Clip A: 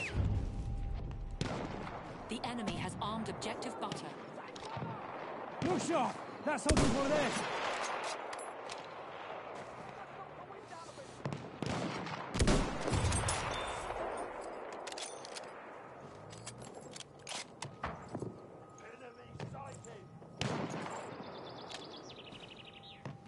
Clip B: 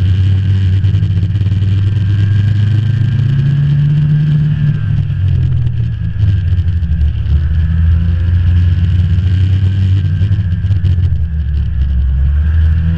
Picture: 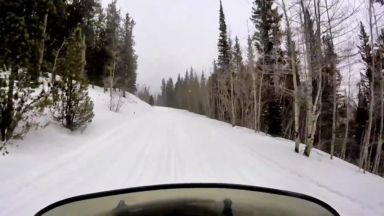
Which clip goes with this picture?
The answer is B